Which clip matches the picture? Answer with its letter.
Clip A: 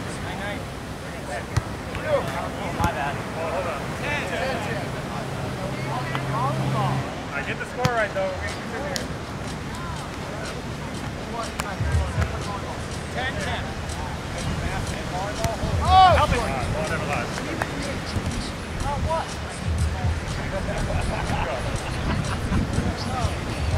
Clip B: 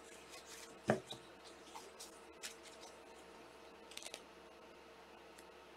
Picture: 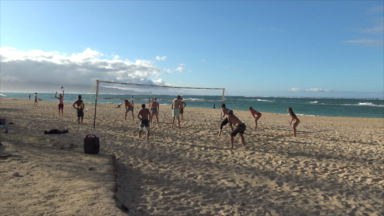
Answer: A